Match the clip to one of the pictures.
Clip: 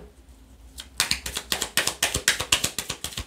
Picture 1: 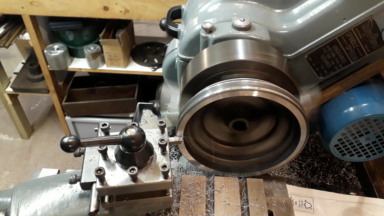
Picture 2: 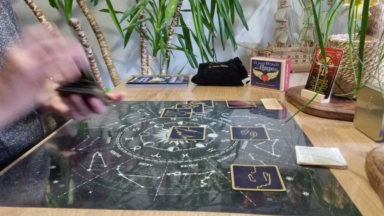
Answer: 2